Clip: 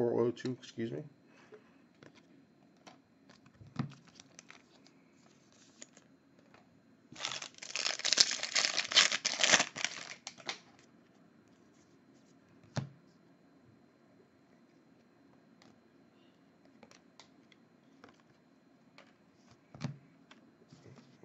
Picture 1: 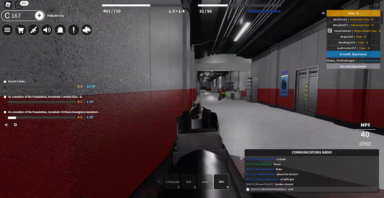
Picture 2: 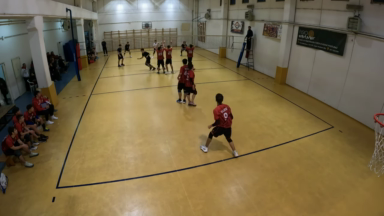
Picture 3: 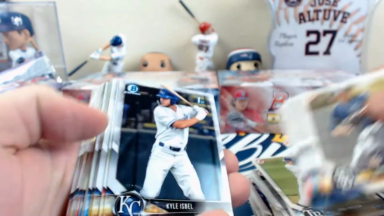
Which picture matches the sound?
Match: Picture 3